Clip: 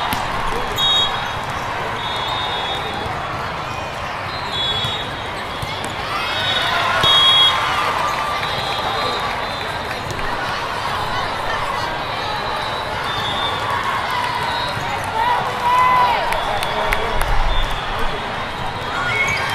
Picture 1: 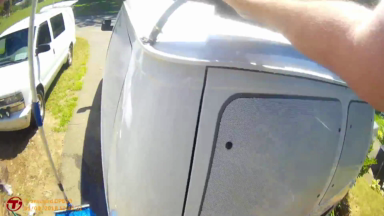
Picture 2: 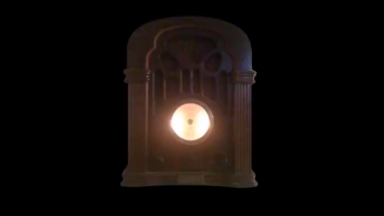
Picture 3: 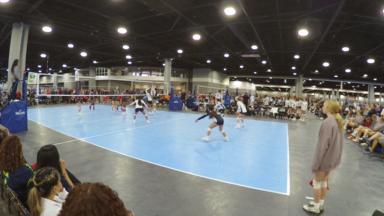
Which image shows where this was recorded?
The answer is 3